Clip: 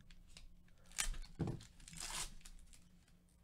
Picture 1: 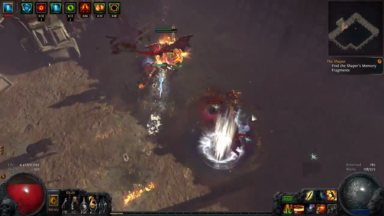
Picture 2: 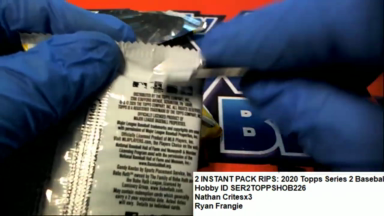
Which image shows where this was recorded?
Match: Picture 2